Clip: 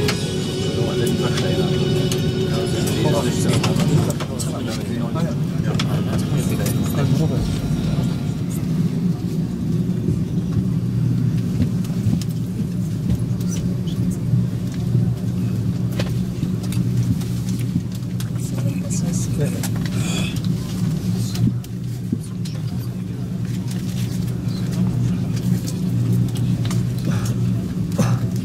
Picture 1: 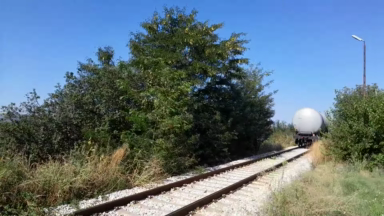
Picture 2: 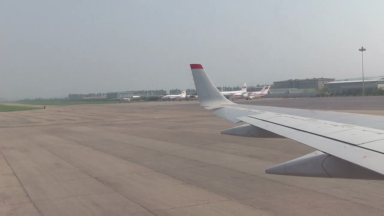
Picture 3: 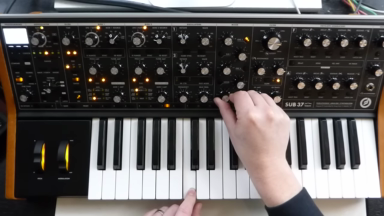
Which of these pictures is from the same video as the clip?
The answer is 2